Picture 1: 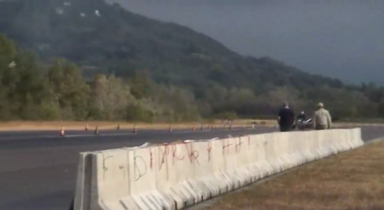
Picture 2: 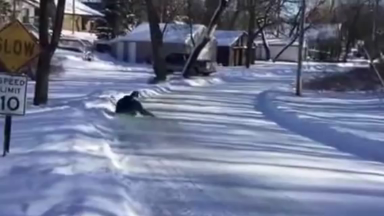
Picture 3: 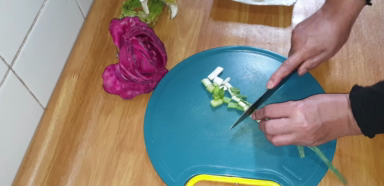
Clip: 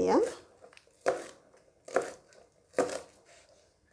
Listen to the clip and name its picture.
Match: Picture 3